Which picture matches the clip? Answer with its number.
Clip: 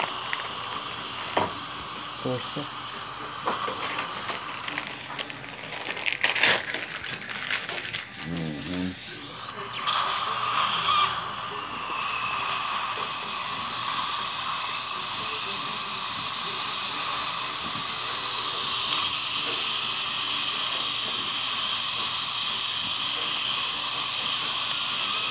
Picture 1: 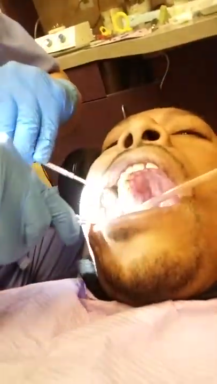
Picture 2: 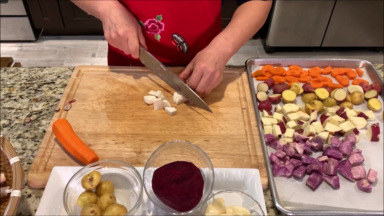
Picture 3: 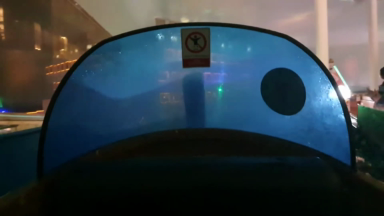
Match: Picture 1